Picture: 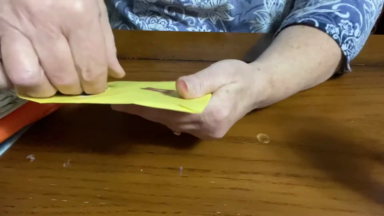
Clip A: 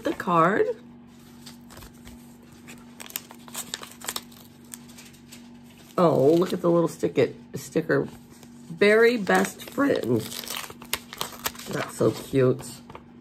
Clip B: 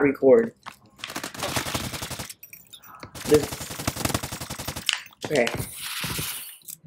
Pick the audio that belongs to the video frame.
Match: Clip A